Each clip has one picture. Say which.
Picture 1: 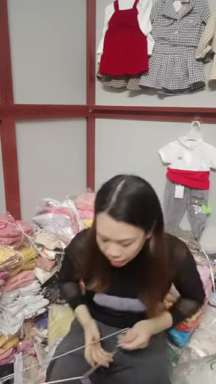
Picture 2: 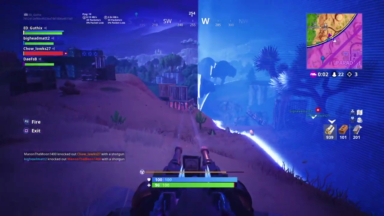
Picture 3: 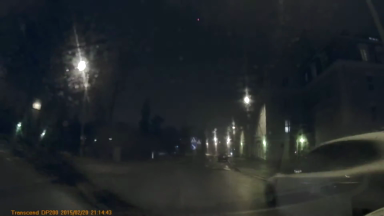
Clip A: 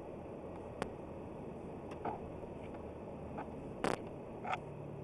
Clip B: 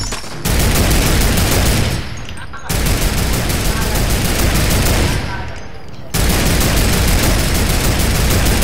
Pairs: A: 3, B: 2